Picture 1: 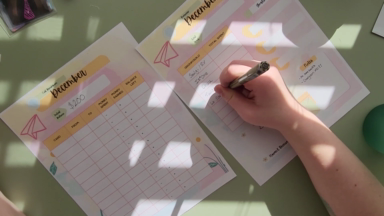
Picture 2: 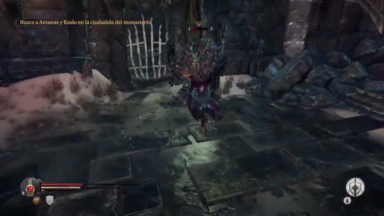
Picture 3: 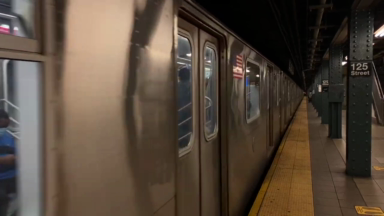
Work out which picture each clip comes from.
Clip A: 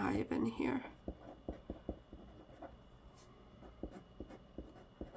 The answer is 1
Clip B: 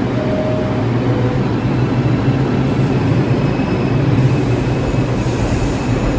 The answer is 3